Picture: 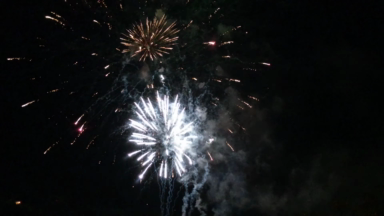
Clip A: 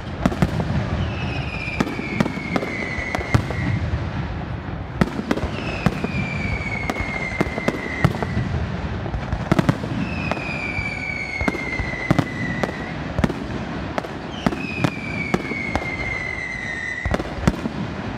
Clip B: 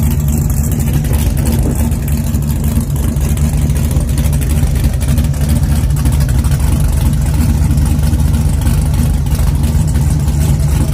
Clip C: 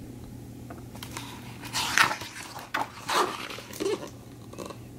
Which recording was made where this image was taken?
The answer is A